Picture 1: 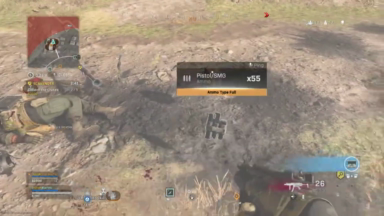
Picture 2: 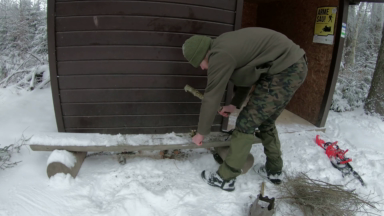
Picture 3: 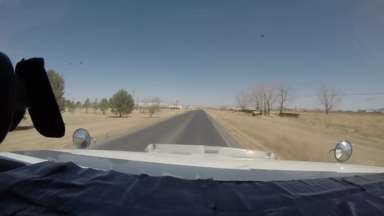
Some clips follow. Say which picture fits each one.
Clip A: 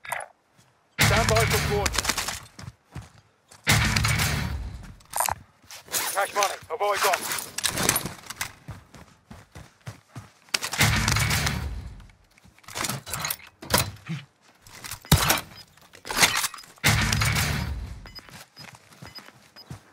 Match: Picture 1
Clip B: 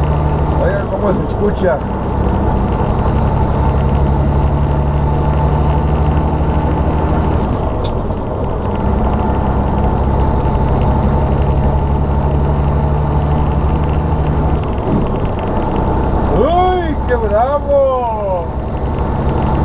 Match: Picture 3